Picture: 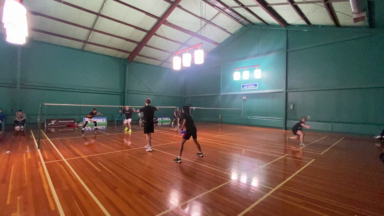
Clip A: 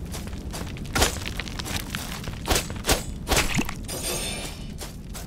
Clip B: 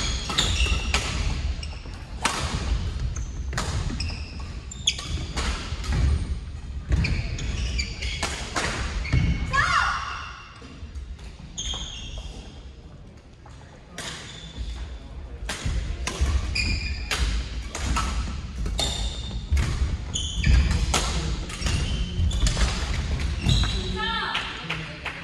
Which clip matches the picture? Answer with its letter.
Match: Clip B